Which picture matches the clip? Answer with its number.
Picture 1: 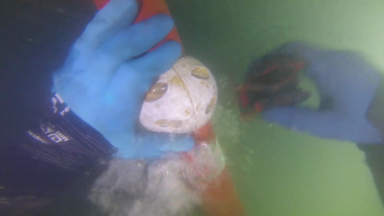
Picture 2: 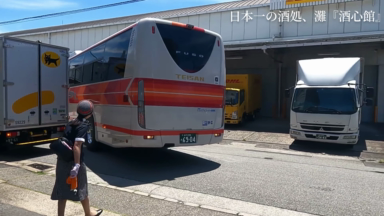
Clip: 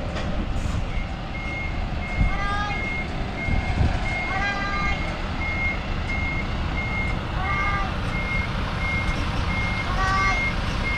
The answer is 2